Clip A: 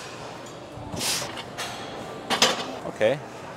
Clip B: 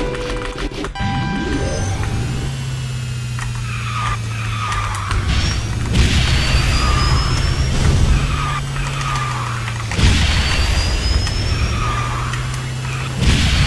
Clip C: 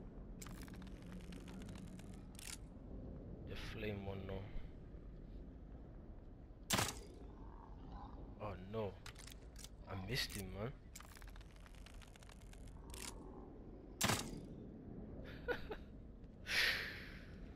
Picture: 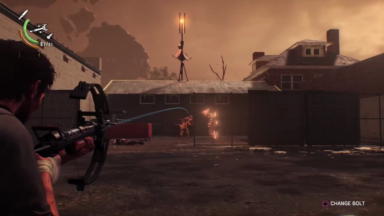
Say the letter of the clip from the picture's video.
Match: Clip C